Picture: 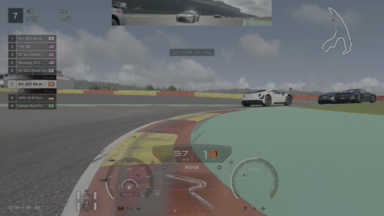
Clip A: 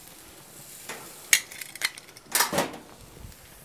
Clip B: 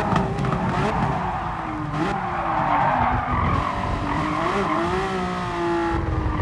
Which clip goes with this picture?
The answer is B